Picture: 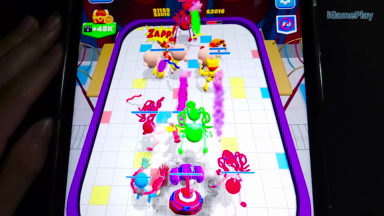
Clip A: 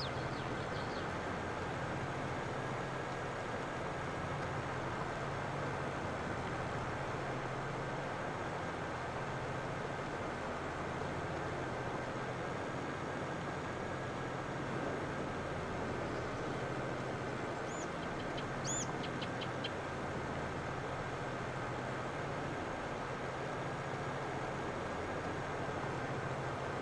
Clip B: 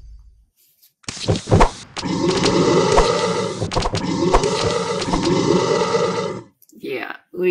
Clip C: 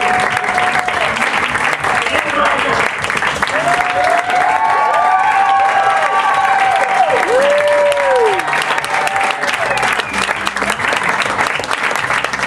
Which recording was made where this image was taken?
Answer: B